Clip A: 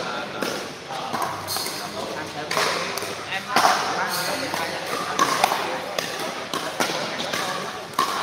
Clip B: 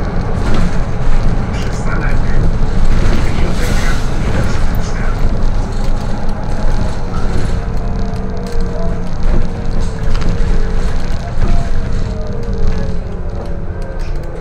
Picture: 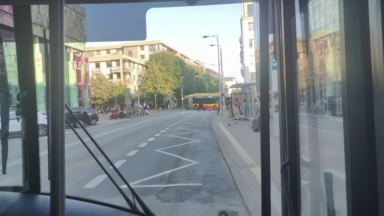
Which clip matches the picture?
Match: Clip B